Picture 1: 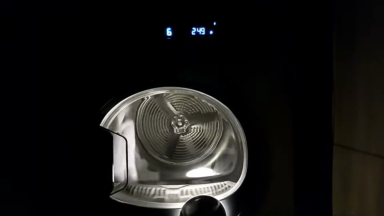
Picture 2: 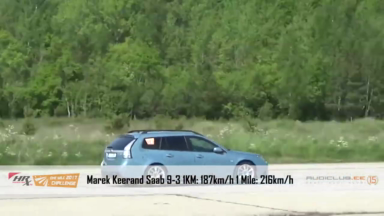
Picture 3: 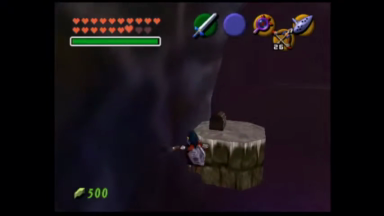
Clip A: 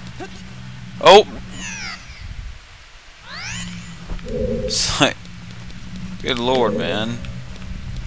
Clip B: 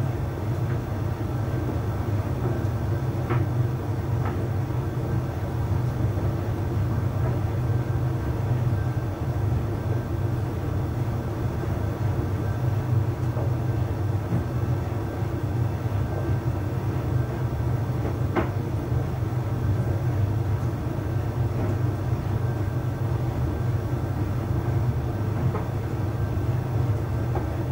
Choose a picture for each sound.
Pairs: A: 3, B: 1